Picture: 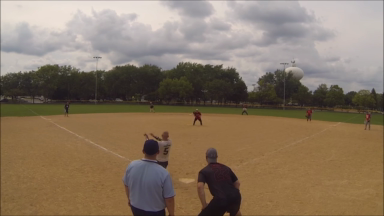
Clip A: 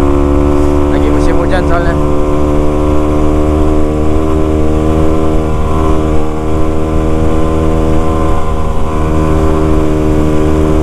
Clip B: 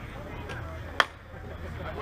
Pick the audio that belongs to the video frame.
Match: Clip B